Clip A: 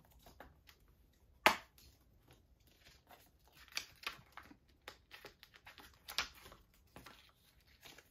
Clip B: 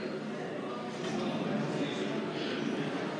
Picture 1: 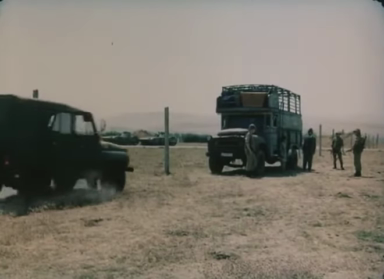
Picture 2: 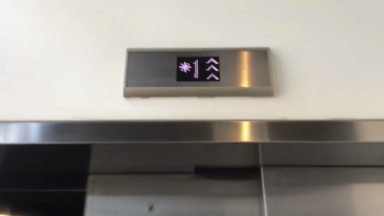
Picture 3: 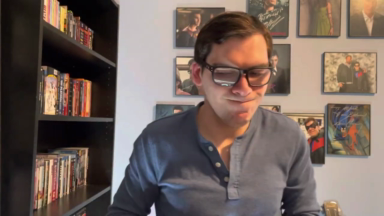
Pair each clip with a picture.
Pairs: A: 3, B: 2